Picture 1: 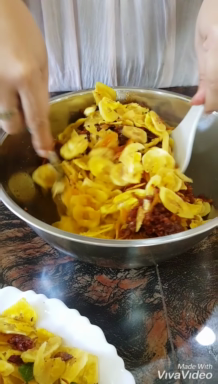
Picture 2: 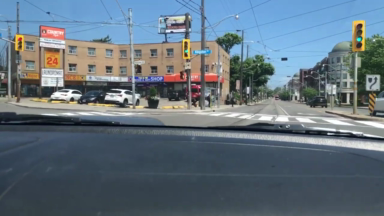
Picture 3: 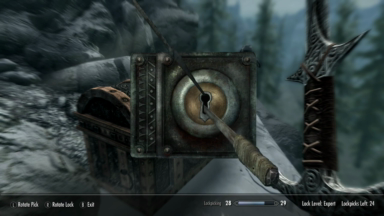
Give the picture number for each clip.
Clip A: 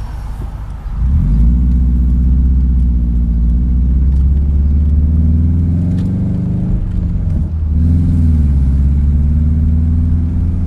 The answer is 2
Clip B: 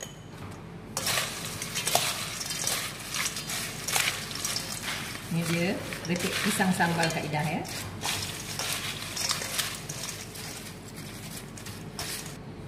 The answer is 1